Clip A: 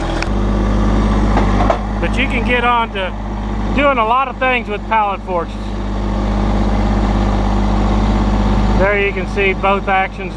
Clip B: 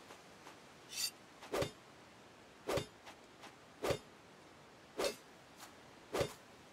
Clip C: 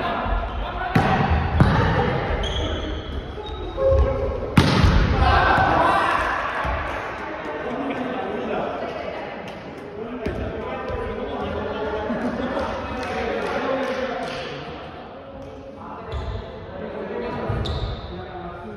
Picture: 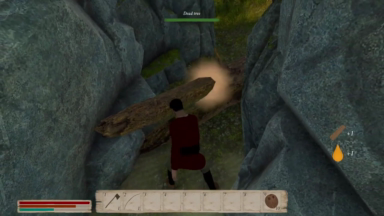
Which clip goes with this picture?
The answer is B